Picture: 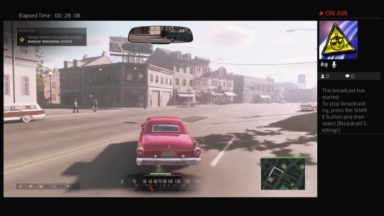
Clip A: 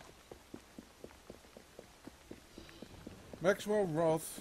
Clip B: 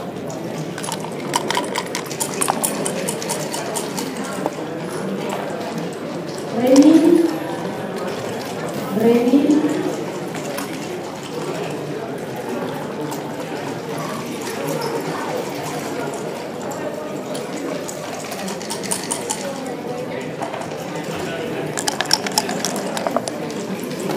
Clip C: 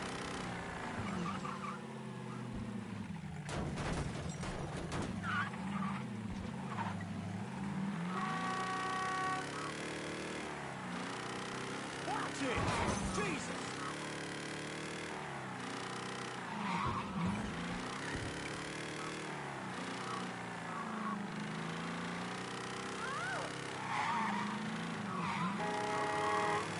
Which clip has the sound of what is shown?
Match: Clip C